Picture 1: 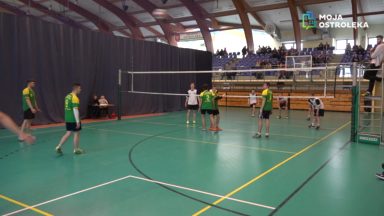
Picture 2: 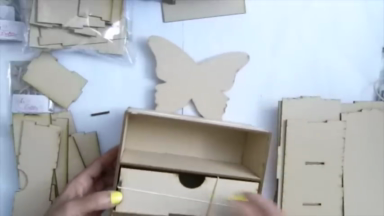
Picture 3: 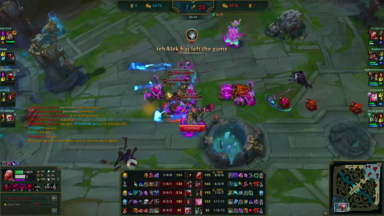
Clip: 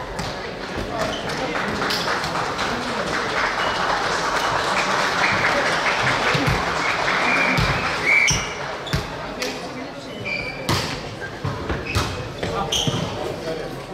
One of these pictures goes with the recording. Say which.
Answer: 1